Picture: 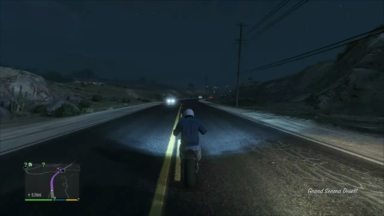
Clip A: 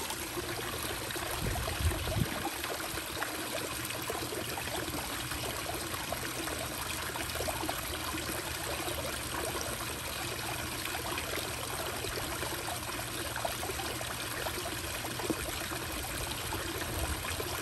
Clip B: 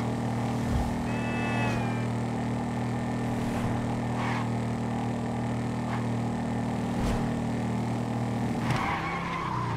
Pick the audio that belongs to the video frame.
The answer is B